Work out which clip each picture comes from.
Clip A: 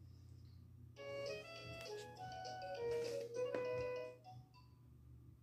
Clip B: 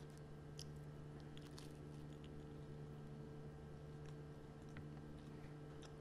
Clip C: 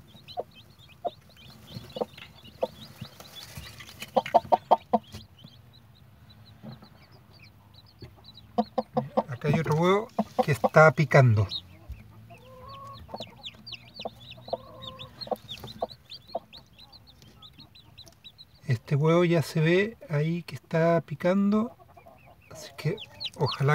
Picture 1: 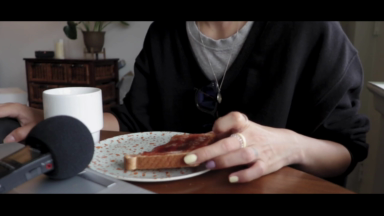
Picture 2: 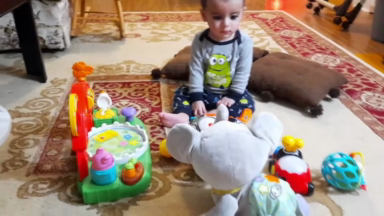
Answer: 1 B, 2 A